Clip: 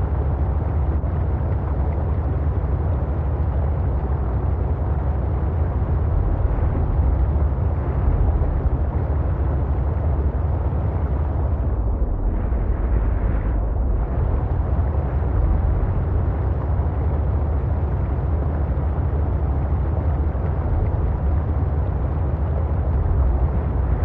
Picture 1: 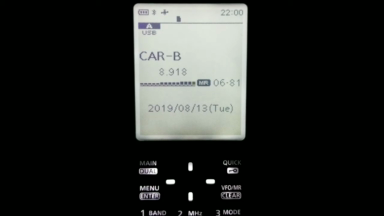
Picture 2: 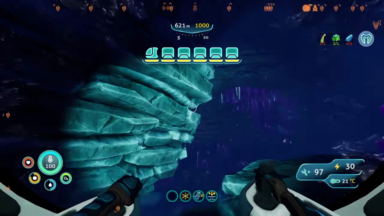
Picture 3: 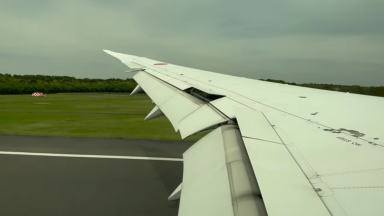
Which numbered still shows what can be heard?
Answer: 2